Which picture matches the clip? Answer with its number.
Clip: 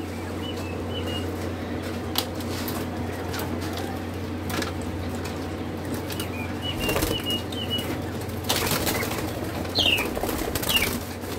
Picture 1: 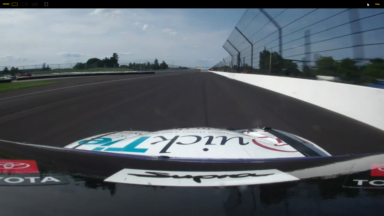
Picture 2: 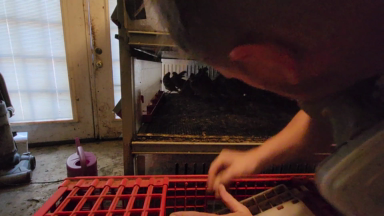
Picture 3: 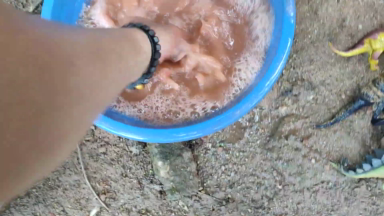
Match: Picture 2